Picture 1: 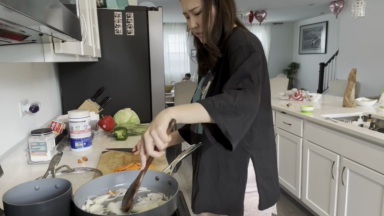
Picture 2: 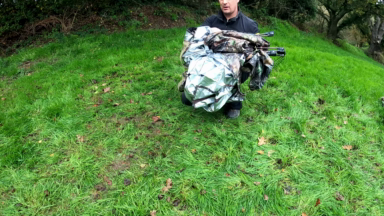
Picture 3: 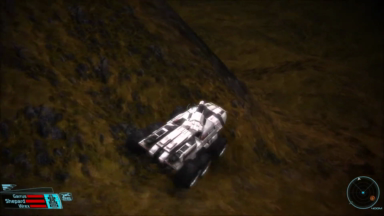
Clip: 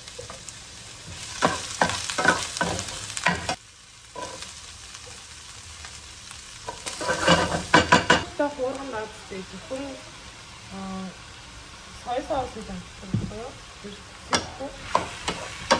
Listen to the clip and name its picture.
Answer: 1